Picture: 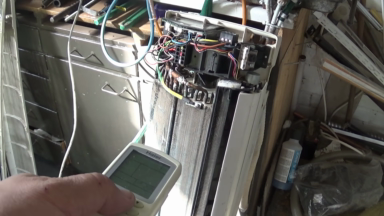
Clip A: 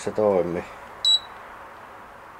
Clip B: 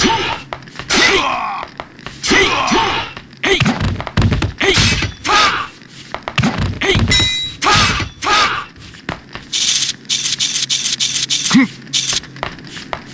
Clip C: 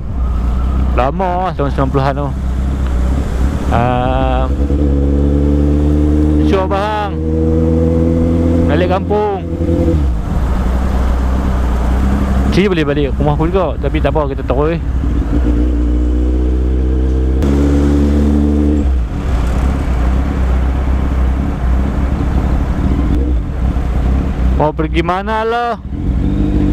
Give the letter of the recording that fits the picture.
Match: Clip A